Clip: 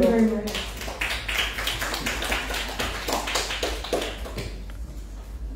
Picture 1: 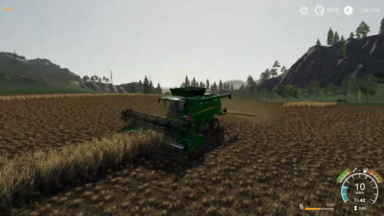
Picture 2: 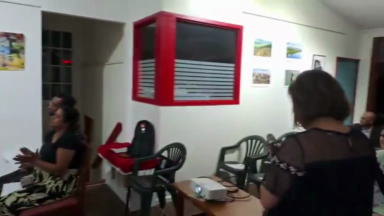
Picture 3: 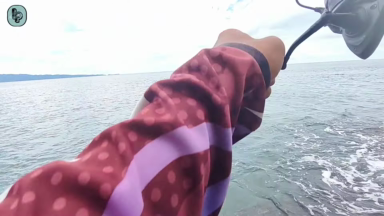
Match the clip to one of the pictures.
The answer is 2